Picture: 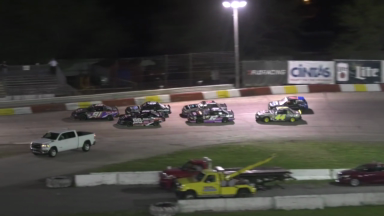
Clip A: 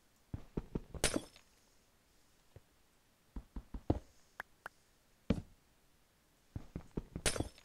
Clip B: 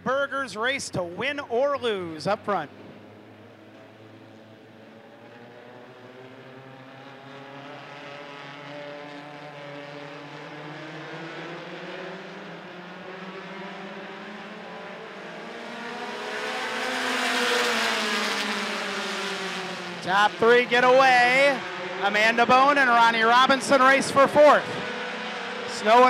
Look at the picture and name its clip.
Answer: B